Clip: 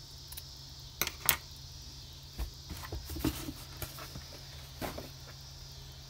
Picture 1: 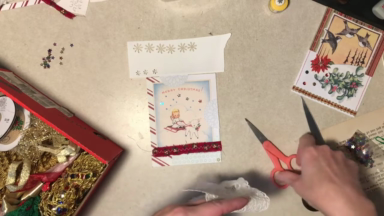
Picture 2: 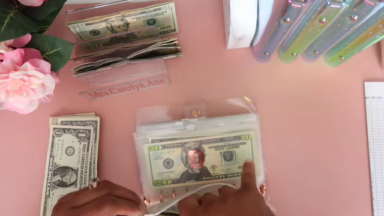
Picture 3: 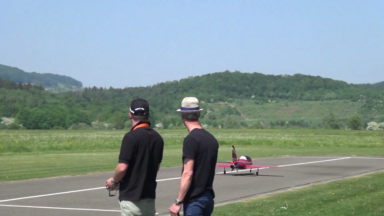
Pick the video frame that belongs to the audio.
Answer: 1